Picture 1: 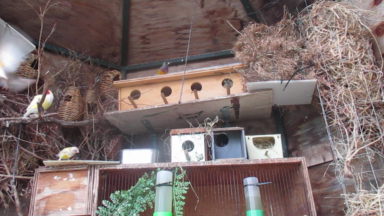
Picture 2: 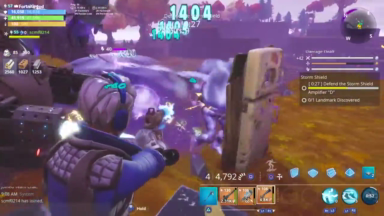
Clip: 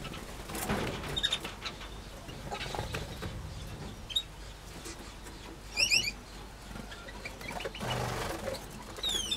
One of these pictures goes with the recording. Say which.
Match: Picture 1